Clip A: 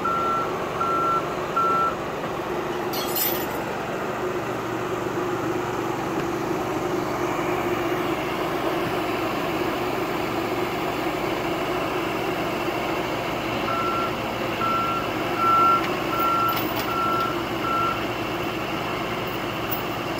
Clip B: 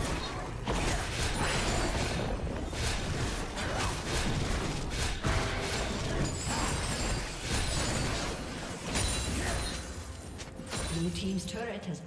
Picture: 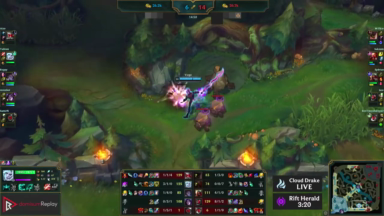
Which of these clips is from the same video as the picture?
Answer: B